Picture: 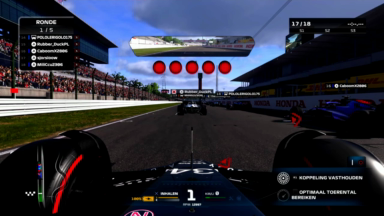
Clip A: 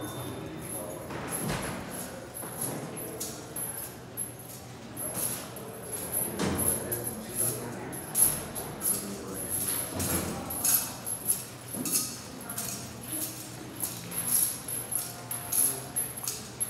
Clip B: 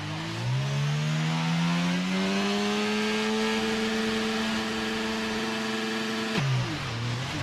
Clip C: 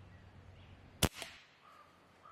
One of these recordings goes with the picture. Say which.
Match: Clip B